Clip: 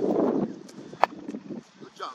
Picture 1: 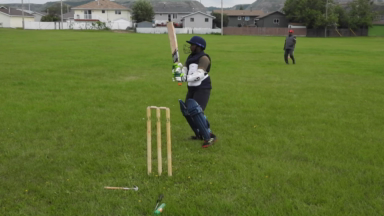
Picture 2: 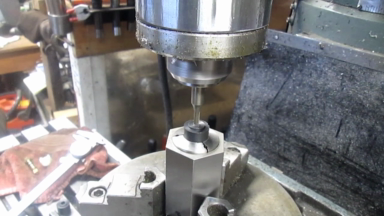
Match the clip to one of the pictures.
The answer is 1